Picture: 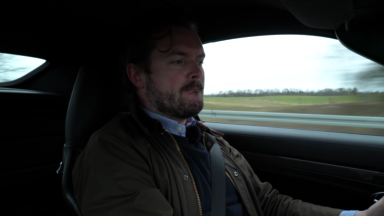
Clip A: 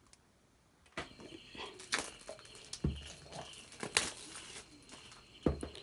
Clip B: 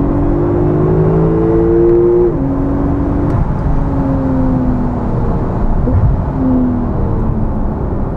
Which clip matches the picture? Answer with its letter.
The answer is B